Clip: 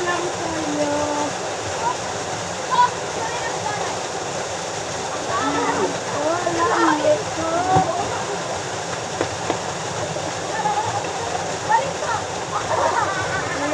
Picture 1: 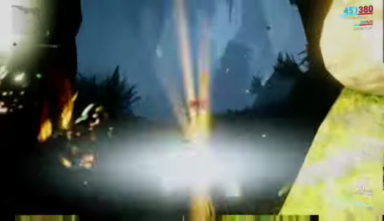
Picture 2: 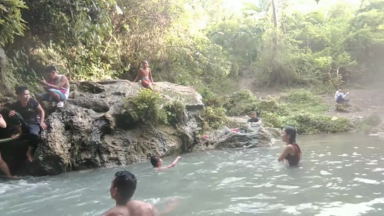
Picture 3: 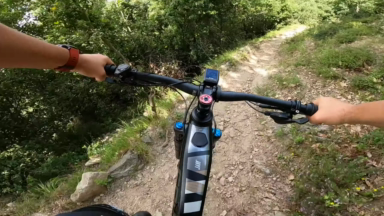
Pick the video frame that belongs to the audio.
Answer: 2